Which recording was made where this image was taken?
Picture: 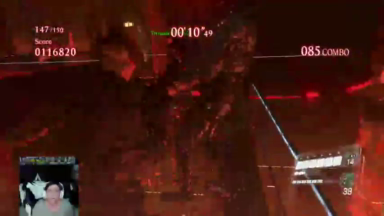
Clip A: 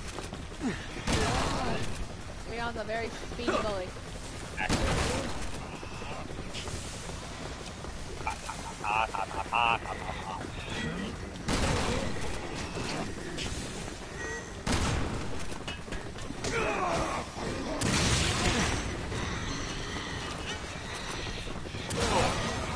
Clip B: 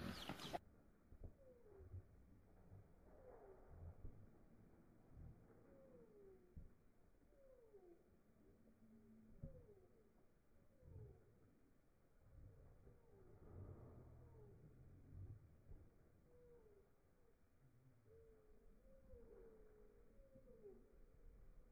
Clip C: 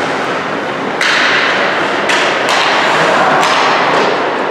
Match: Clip A